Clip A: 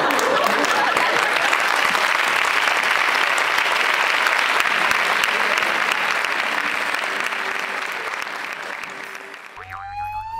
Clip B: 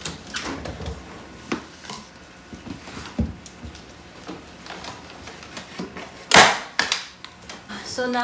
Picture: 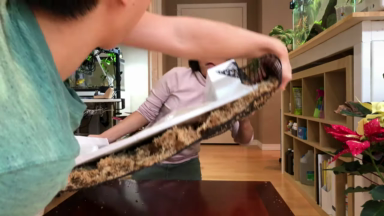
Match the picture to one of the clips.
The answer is B